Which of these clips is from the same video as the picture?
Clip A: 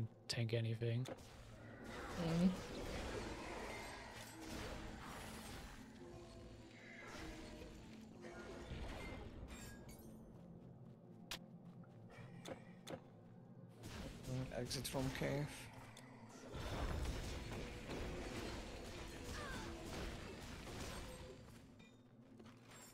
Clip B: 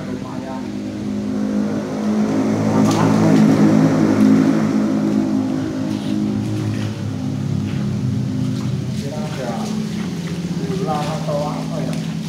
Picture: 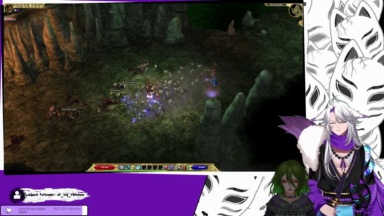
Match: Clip A